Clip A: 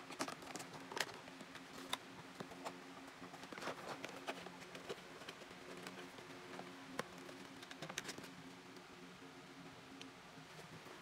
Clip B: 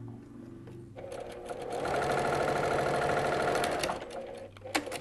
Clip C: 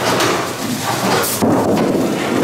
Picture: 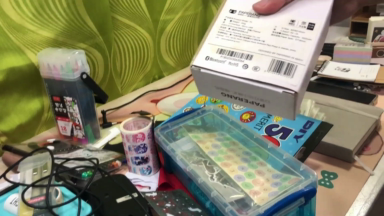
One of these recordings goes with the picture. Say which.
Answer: A